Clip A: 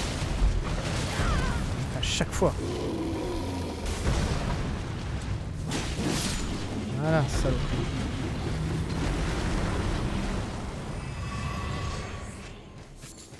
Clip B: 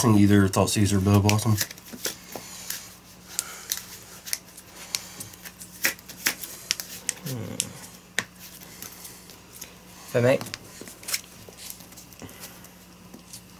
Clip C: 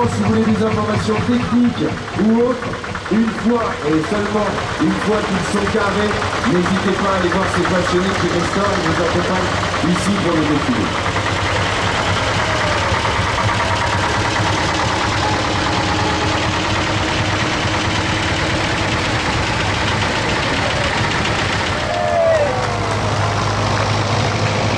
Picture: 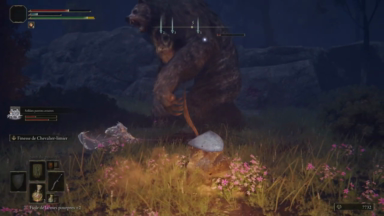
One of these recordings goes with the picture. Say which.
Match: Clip A